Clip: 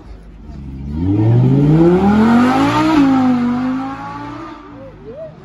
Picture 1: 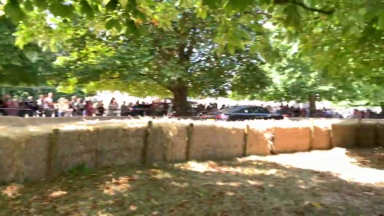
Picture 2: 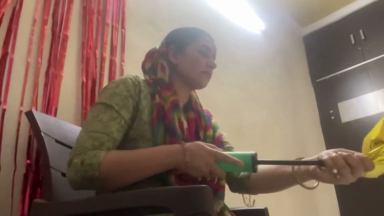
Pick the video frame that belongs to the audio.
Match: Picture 1